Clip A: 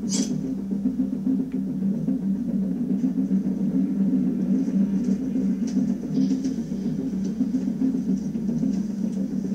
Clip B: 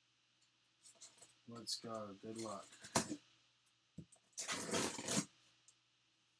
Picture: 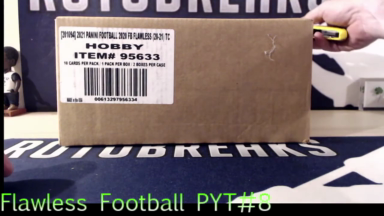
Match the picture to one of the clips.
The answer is B